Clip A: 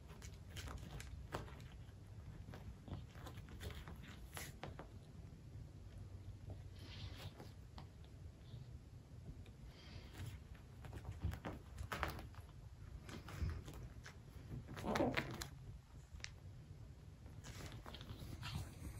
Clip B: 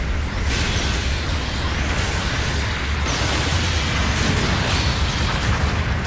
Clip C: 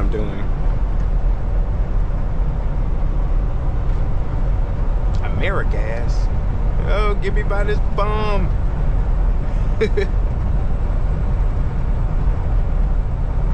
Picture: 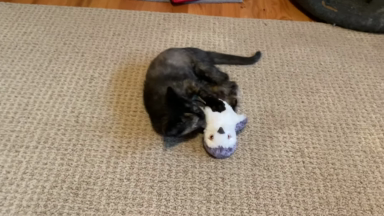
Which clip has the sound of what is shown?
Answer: A